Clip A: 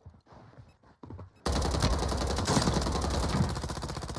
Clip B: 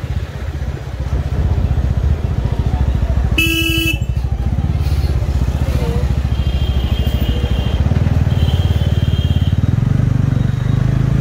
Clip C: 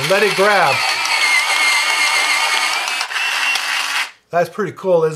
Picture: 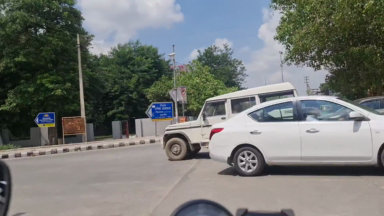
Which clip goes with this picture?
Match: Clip B